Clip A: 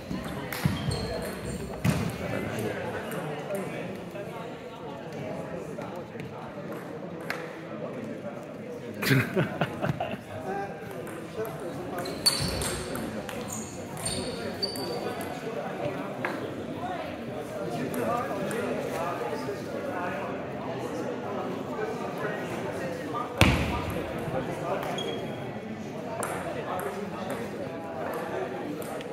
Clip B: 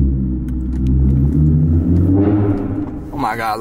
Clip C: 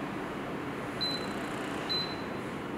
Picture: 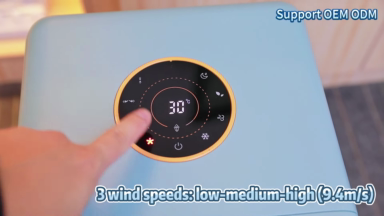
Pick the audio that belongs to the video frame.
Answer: C